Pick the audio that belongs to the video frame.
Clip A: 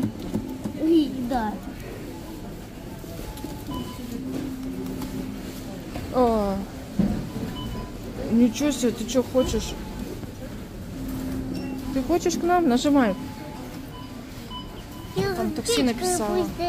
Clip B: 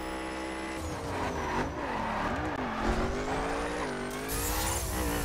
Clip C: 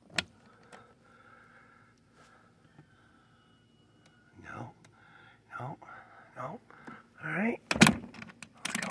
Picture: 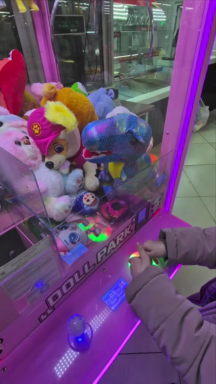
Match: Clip A